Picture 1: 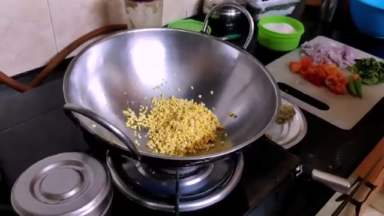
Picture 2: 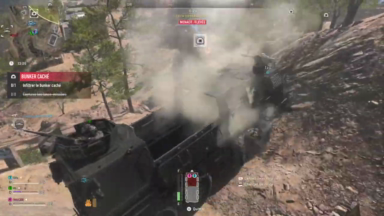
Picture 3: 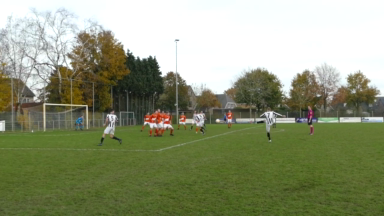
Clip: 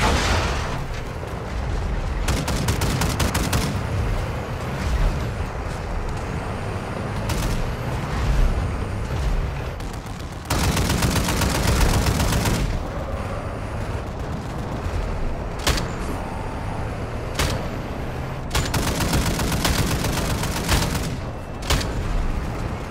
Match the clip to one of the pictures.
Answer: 2